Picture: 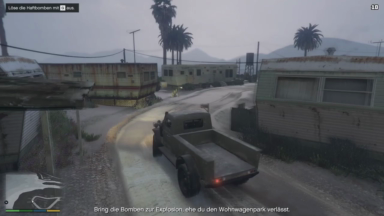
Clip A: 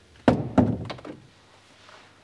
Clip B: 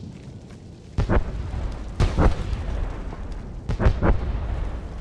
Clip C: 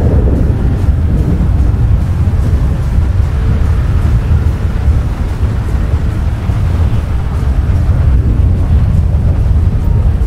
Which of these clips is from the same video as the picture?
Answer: C